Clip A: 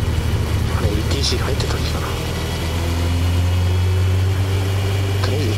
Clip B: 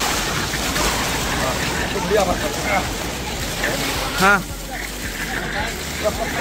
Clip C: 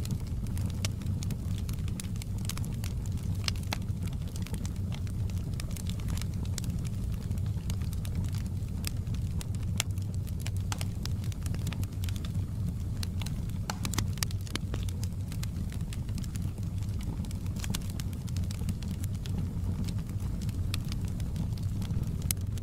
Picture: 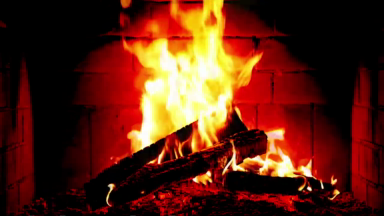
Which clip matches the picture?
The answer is C